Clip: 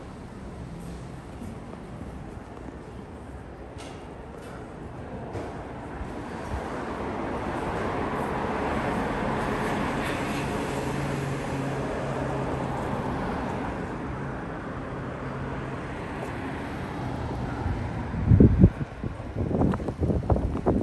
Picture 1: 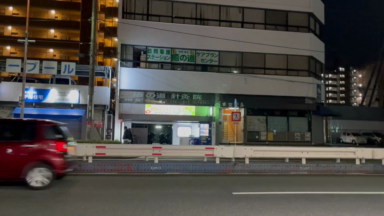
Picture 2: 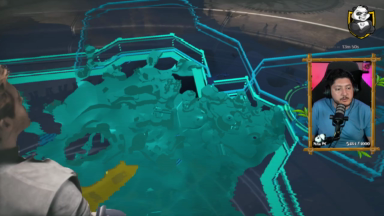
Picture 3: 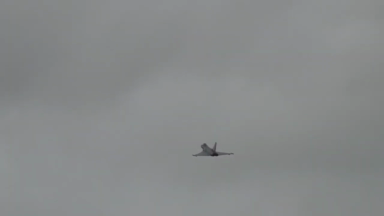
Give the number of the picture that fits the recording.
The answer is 1